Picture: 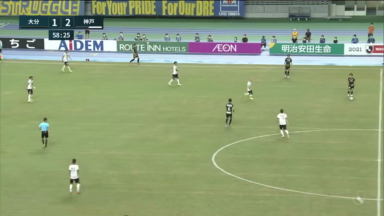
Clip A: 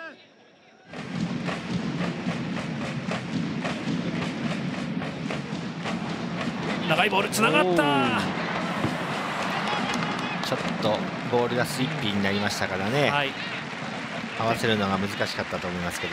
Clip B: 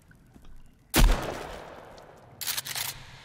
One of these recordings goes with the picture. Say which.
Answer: A